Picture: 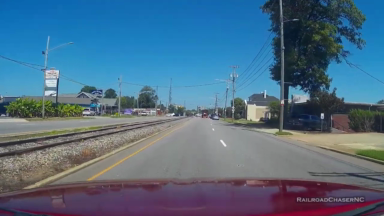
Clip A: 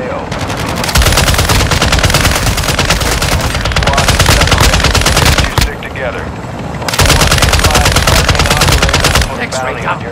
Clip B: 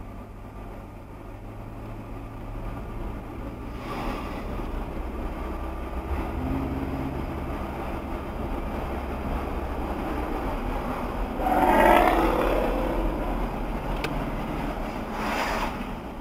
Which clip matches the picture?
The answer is B